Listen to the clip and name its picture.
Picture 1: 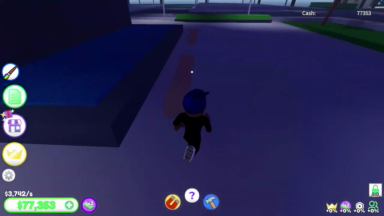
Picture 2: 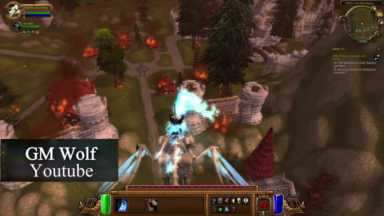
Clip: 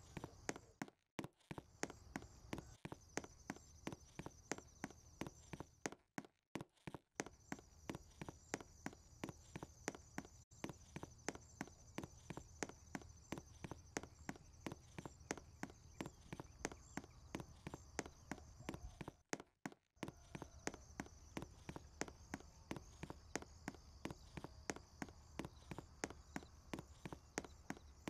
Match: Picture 1